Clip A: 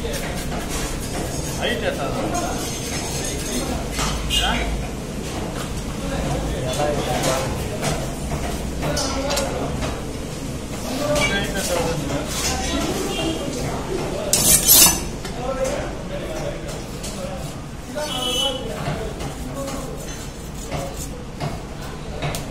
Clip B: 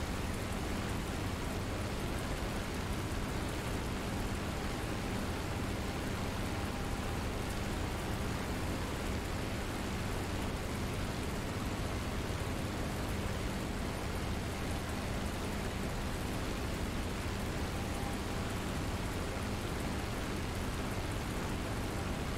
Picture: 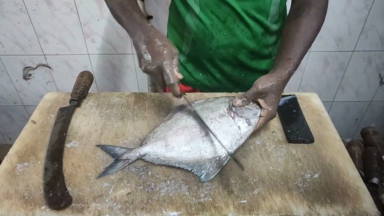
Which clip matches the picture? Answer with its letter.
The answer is A